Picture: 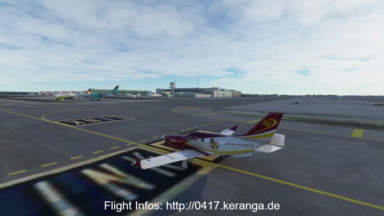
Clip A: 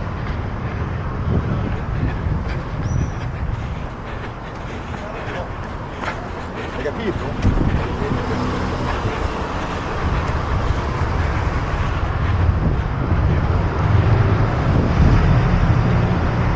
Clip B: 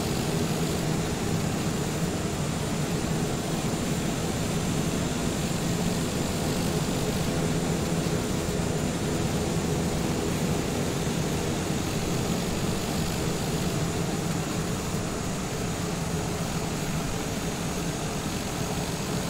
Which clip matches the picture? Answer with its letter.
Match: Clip B